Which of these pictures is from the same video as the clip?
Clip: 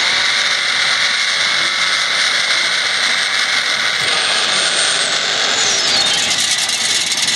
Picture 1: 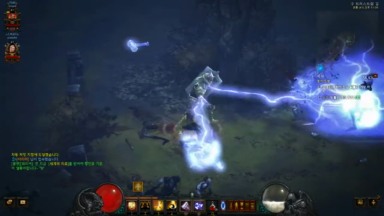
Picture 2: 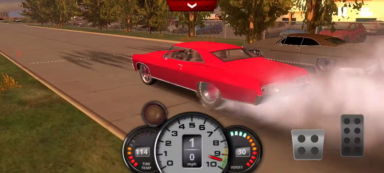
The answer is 2